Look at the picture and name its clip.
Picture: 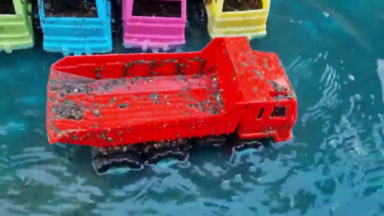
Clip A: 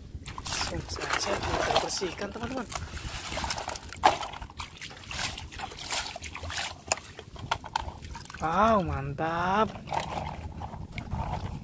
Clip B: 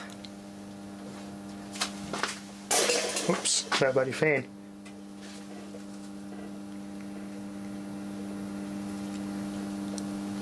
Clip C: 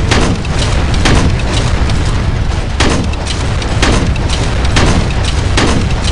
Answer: A